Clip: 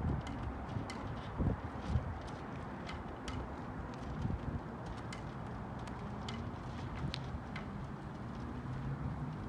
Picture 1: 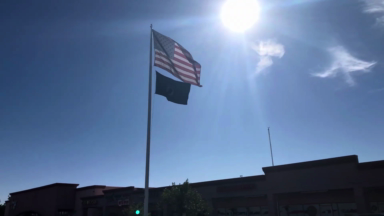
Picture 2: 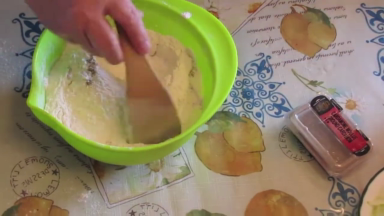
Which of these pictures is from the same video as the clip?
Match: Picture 1